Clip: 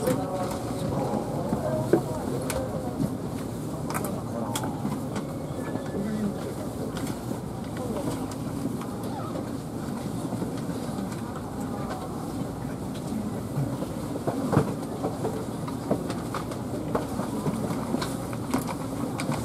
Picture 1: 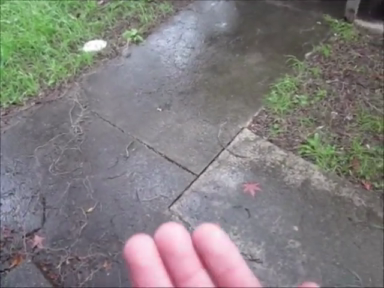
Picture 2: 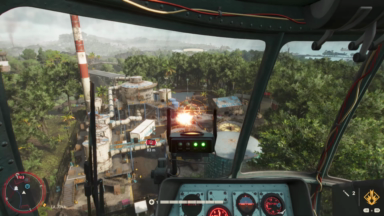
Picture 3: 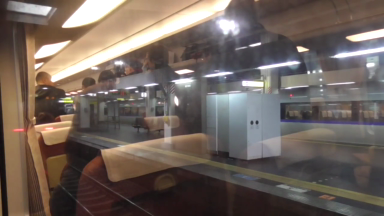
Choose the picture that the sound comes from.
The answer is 3